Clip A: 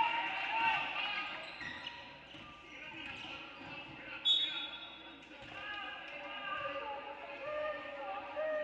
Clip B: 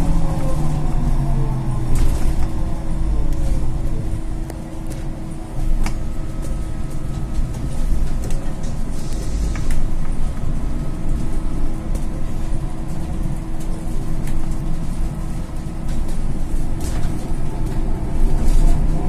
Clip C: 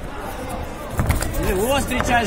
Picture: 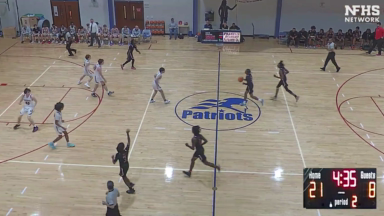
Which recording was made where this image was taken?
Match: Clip A